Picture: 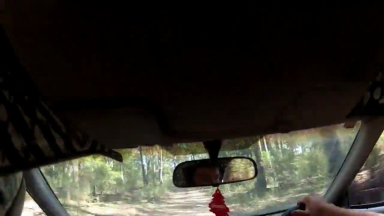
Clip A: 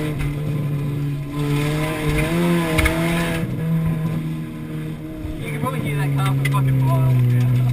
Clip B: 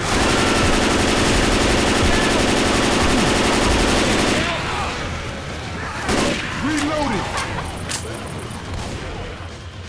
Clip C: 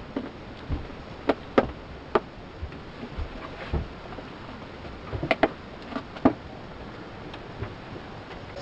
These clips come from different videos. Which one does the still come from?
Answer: A